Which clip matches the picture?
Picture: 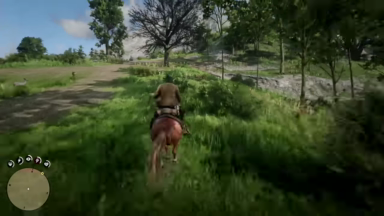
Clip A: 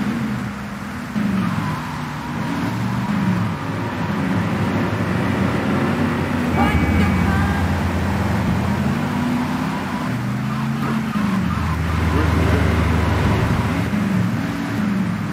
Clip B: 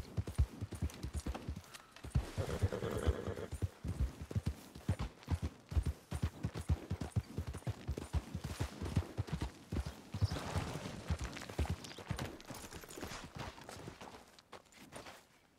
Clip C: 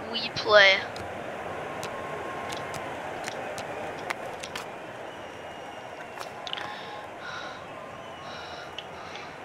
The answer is B